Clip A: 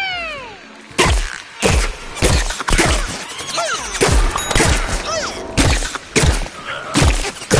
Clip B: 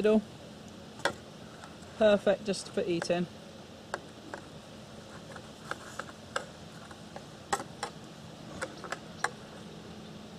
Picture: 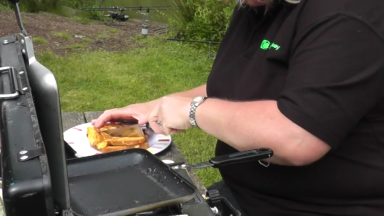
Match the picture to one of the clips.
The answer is B